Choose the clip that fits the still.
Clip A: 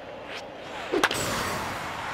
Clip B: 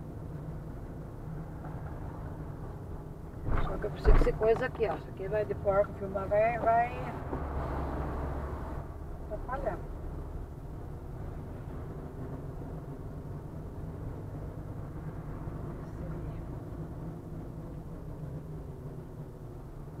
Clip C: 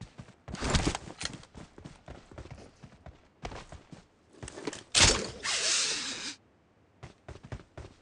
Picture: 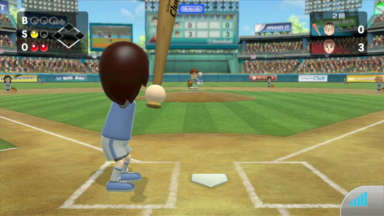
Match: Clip A